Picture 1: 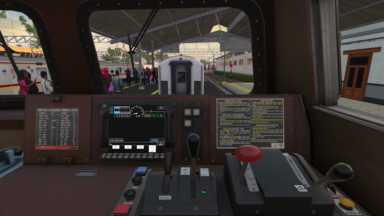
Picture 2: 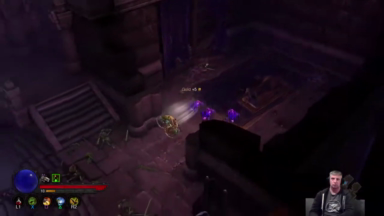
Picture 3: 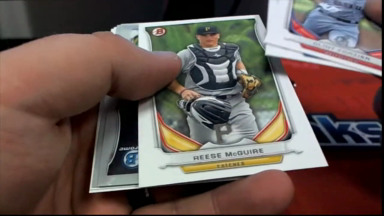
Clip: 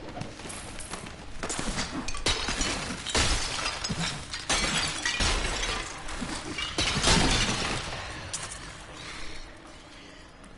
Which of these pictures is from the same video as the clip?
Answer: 2